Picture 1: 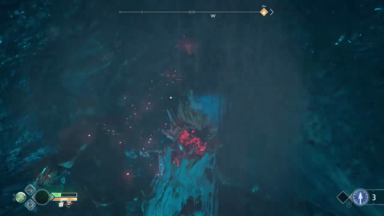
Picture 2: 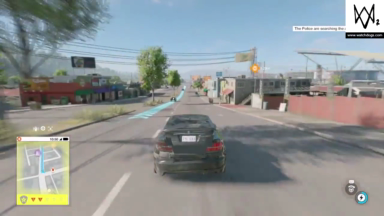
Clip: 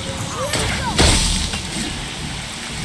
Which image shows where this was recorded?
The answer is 1